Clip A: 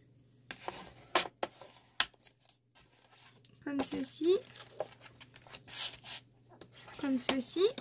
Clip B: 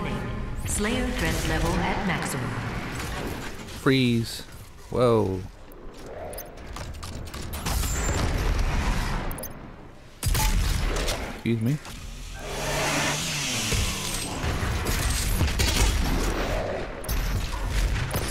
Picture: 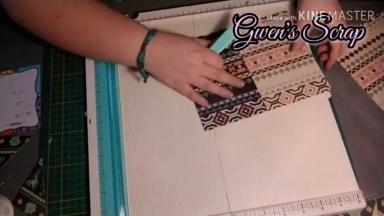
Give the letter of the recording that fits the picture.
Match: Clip A